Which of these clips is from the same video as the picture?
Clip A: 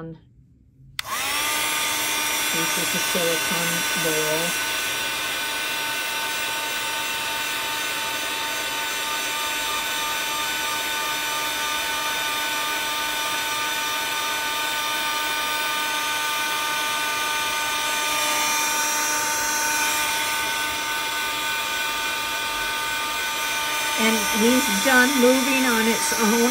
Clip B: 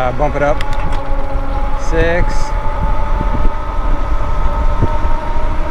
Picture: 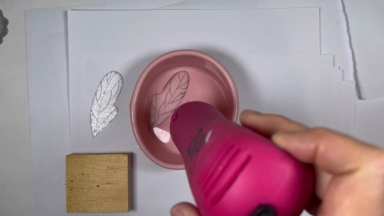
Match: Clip A